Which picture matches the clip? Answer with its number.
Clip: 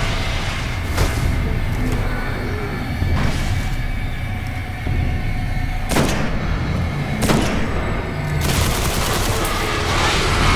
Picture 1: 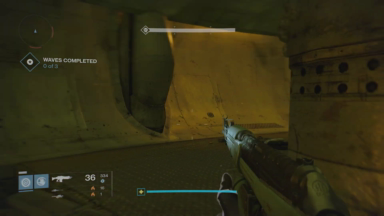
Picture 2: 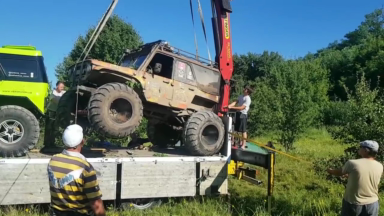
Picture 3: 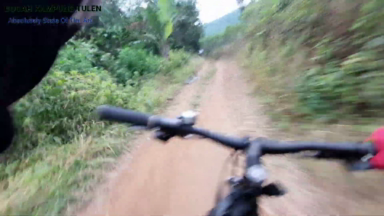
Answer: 1